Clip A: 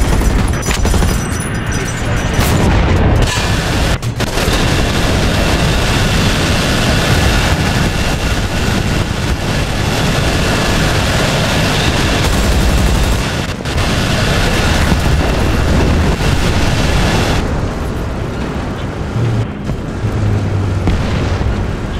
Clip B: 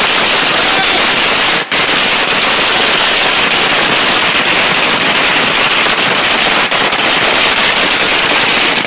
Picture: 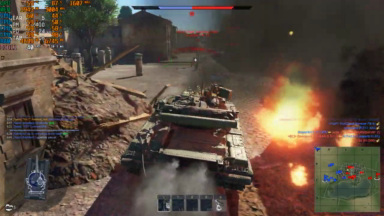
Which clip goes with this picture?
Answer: A